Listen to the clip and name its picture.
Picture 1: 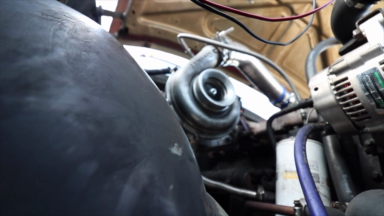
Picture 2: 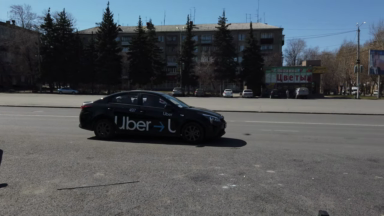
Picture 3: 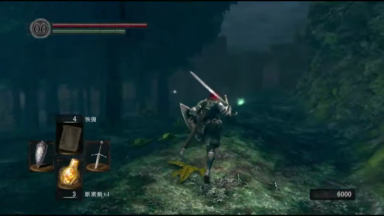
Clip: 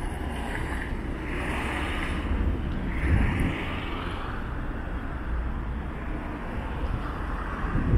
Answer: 2